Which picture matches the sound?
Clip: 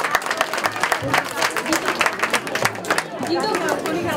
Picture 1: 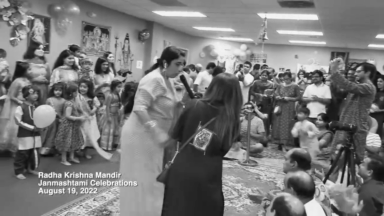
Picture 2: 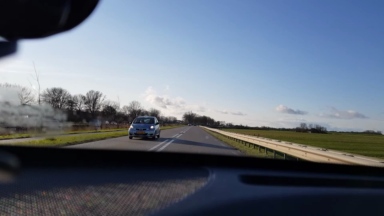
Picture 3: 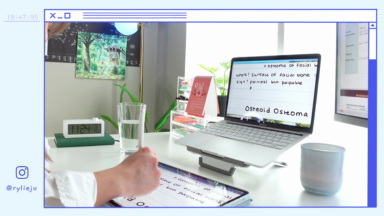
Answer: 1